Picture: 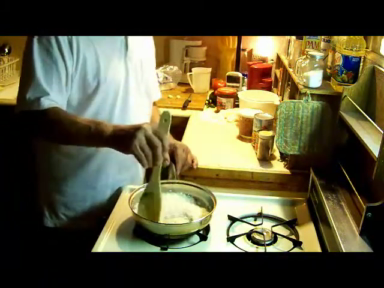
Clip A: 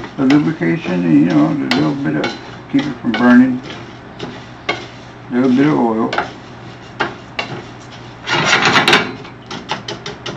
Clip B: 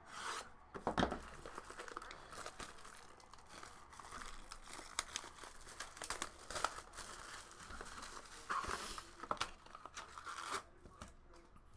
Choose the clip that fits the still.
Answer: A